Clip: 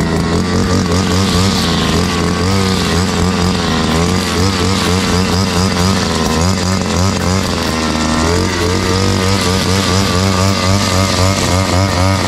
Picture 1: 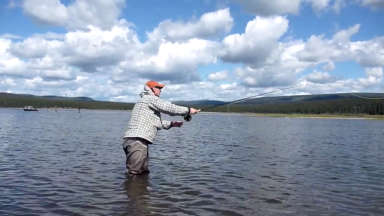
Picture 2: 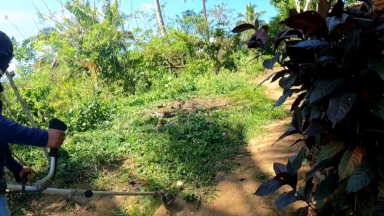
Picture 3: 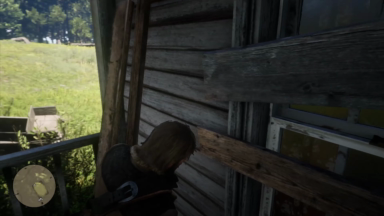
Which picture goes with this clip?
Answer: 2